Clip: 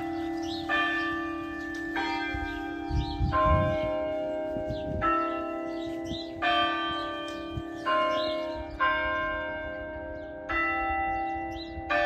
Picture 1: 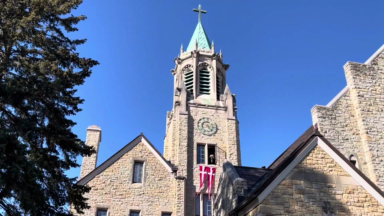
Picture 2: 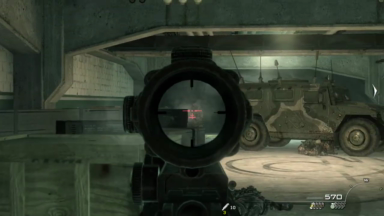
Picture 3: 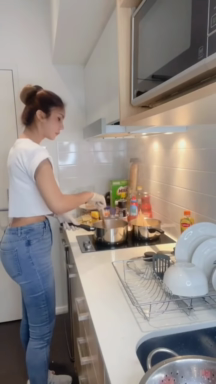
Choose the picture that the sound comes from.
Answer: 1